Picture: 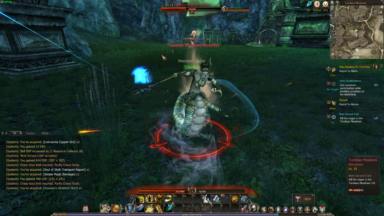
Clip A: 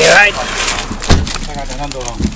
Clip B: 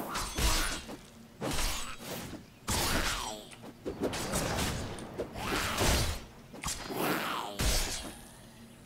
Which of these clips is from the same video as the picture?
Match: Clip B